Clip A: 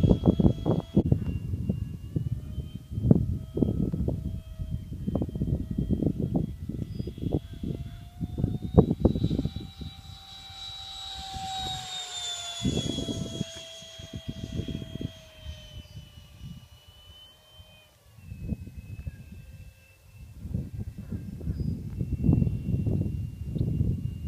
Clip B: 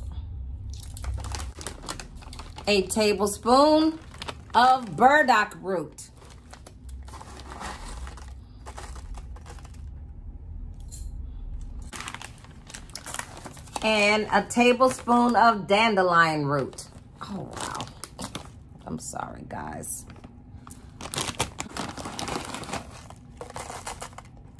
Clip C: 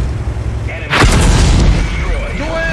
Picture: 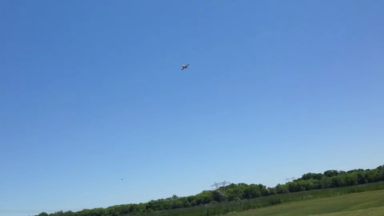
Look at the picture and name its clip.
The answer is A